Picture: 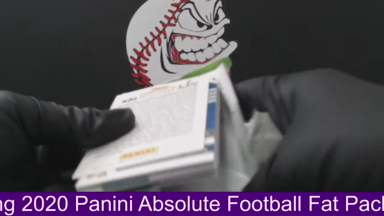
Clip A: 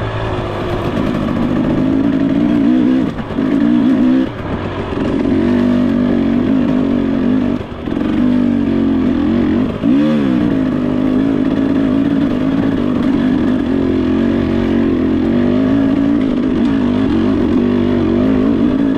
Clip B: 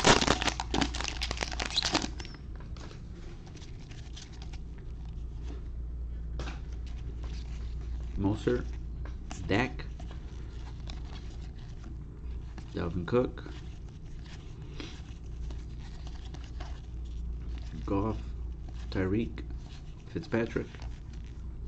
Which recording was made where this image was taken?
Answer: B